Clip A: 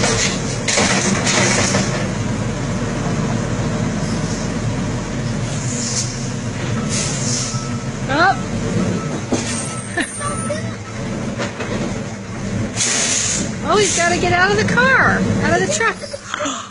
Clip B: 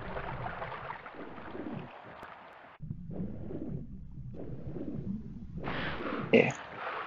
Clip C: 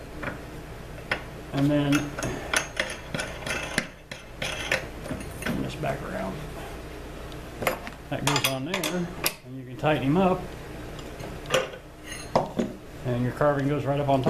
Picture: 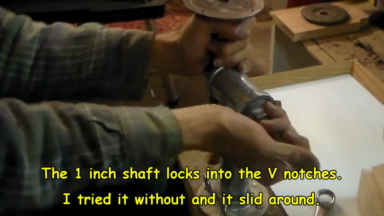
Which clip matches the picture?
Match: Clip C